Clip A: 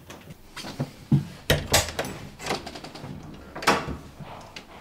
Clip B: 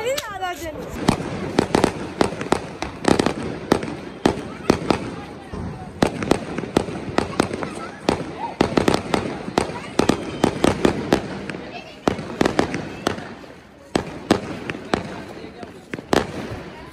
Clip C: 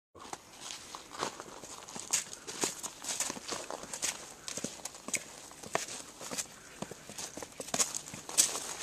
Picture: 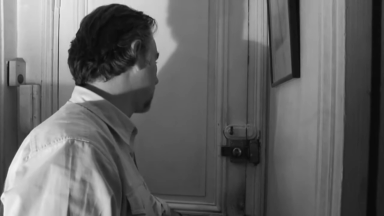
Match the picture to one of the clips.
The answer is A